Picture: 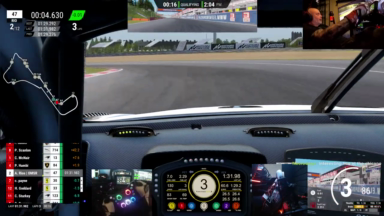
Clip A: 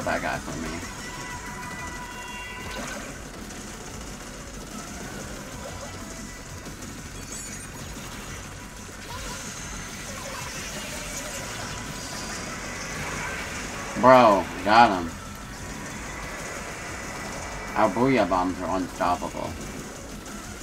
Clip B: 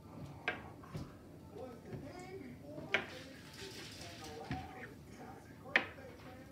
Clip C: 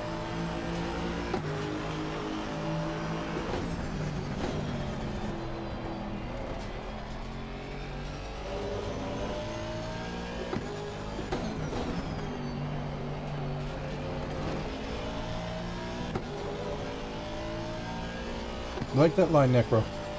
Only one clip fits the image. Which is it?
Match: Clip C